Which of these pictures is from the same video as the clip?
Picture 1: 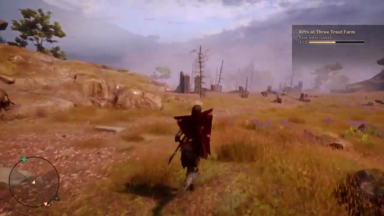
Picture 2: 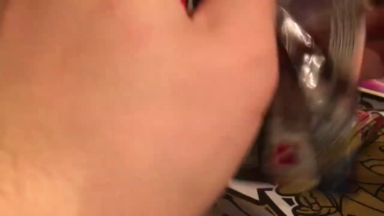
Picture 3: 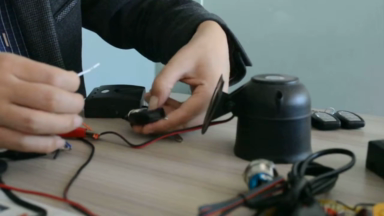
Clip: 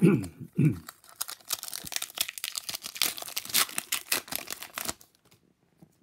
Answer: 2